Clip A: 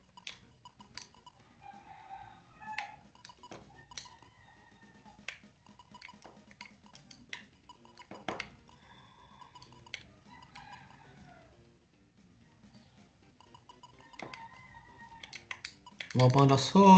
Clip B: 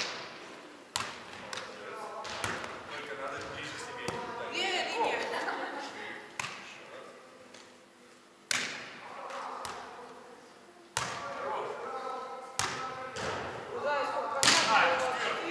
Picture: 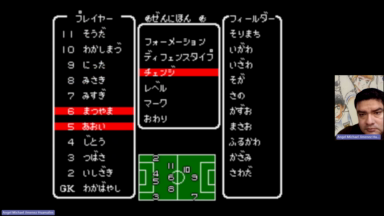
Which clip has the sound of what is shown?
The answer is A